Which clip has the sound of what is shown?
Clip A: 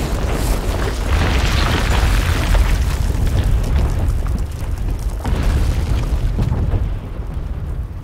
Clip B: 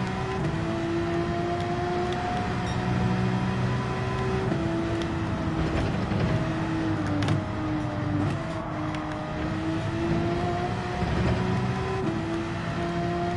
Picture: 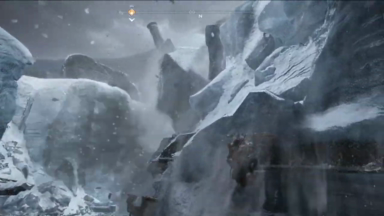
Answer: A